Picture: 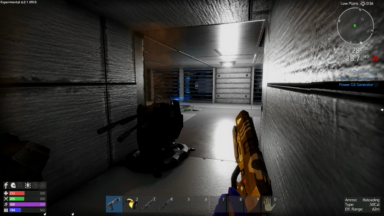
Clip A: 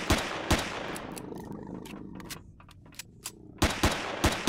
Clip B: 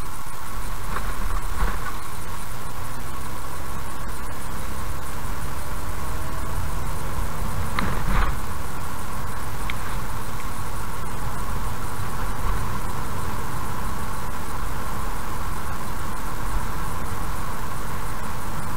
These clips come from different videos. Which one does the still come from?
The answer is A